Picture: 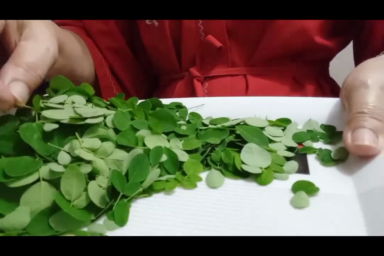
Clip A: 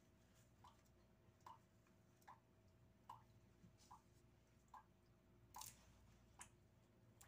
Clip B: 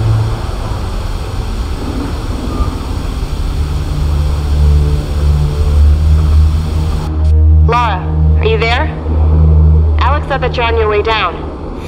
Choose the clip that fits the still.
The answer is A